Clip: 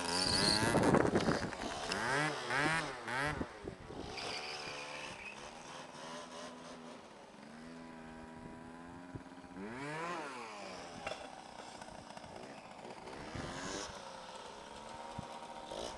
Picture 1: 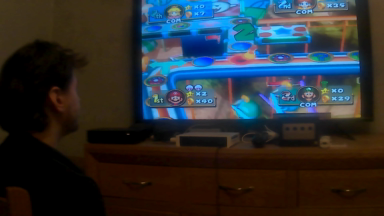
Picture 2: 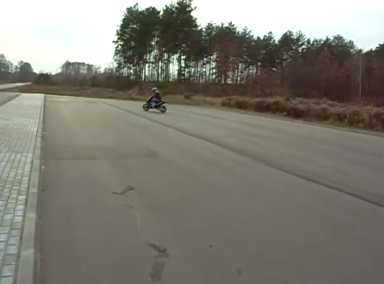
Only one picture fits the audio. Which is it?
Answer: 2